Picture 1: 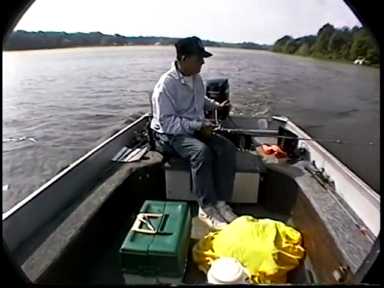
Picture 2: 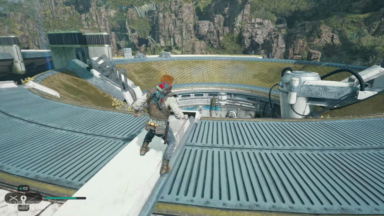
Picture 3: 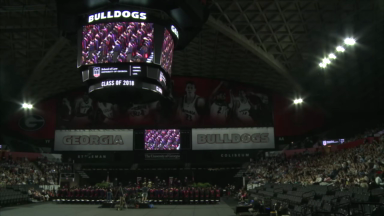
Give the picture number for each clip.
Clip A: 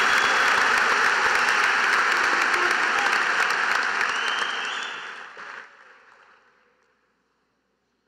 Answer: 3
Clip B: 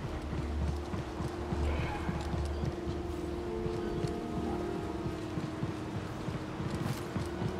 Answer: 2